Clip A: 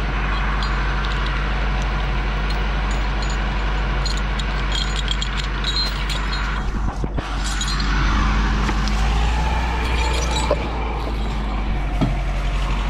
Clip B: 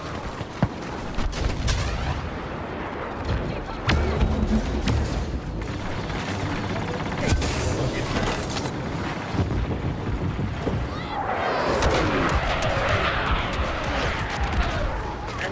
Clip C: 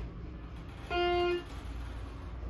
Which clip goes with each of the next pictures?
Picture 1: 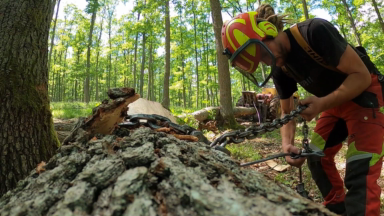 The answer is A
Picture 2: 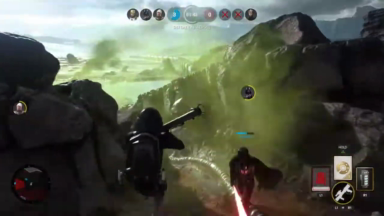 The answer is B